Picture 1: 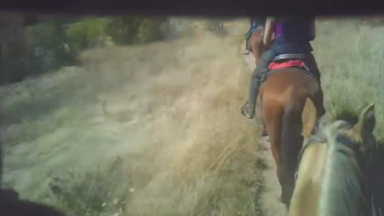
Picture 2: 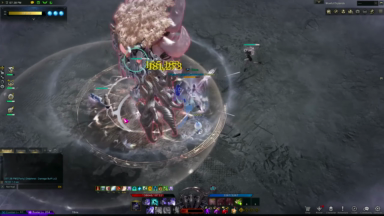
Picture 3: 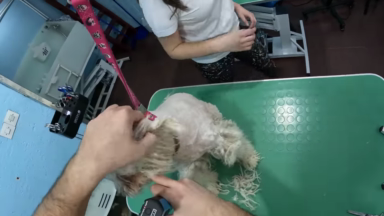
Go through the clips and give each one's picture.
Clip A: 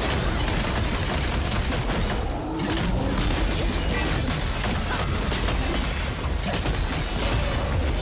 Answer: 2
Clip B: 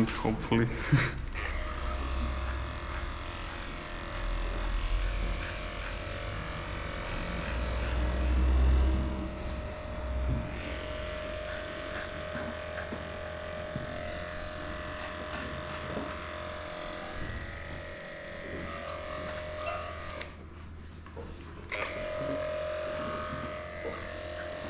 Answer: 3